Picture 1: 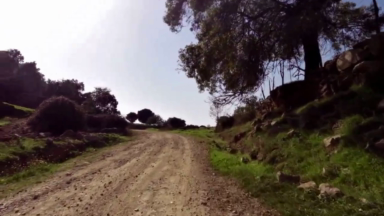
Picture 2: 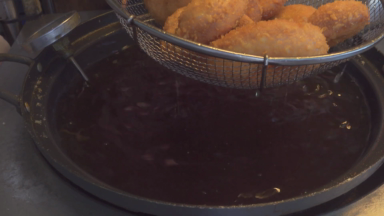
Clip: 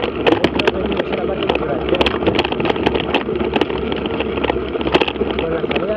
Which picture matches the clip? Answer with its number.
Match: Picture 1